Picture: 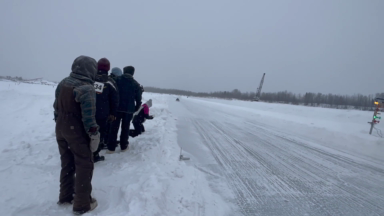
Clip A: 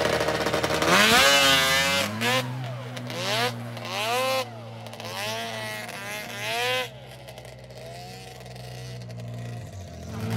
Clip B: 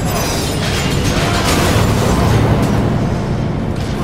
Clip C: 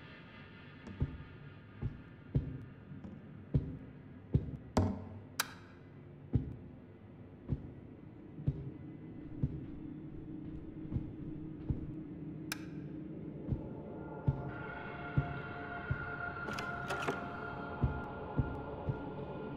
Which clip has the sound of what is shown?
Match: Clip A